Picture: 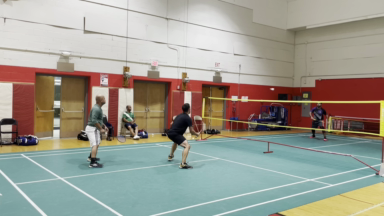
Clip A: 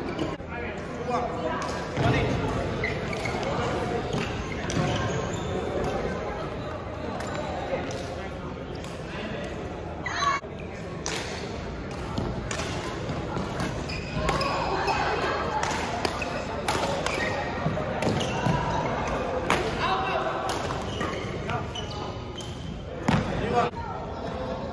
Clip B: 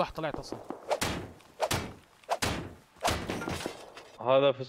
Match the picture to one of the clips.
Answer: A